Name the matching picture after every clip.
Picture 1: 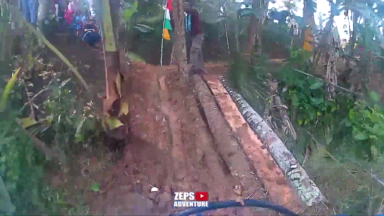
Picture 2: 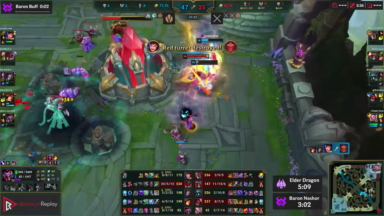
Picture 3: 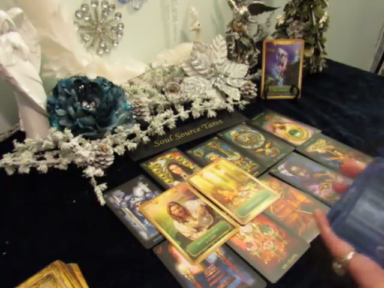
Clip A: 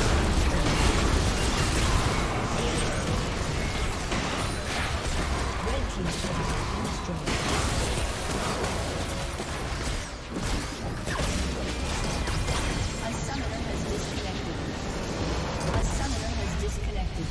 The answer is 2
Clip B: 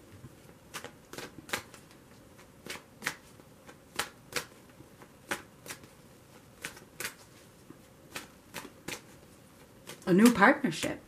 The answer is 3